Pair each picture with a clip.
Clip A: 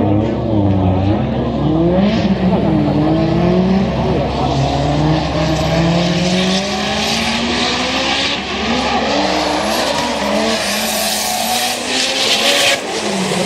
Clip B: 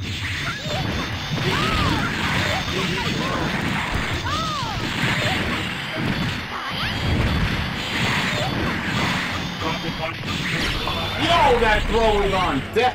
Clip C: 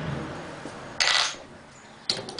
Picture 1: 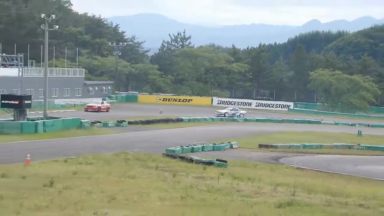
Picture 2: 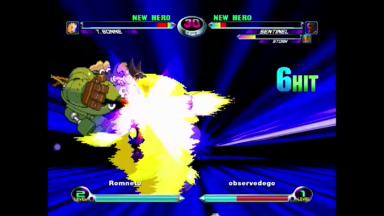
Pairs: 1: A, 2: B